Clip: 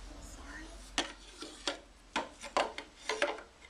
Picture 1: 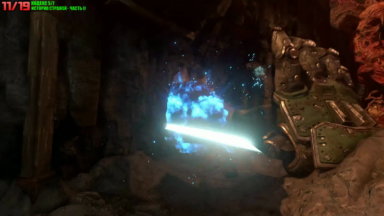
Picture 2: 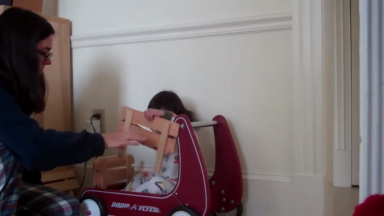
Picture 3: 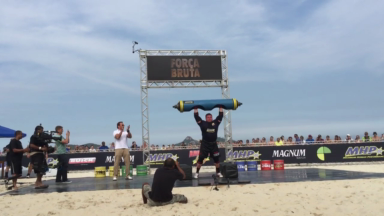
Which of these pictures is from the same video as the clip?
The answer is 2